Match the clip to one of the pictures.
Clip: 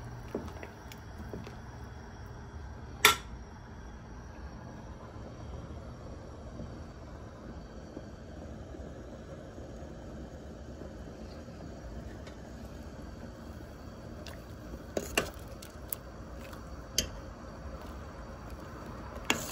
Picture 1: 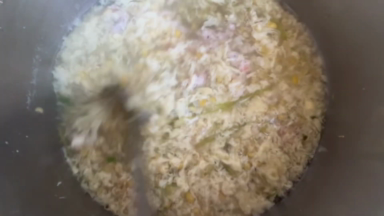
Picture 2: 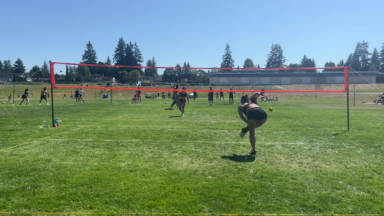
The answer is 1